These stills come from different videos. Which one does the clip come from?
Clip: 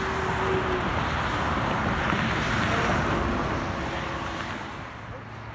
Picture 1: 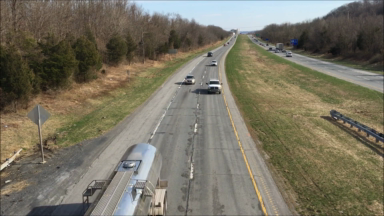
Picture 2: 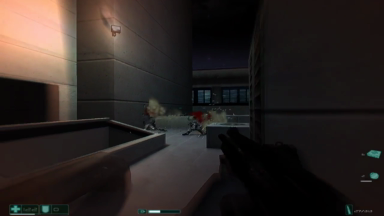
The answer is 1